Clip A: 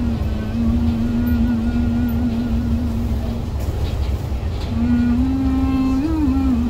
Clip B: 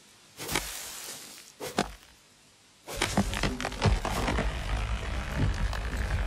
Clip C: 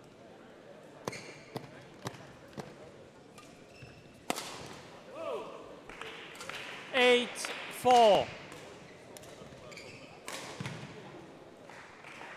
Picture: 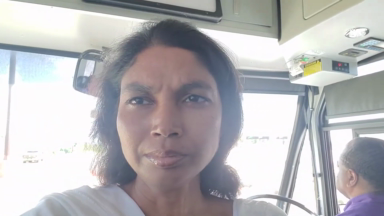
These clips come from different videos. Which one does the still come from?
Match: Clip A